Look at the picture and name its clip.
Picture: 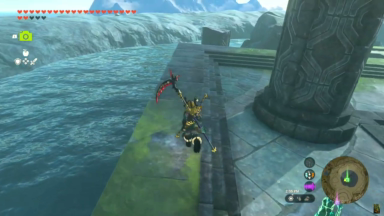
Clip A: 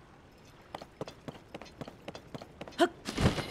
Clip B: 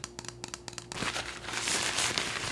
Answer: A